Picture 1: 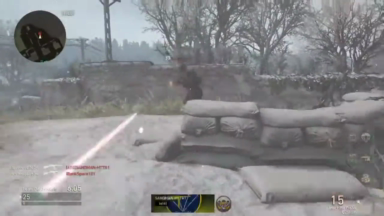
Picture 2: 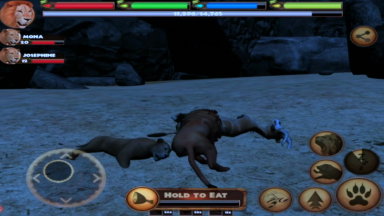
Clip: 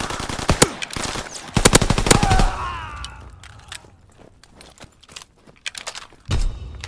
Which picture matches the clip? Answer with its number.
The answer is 1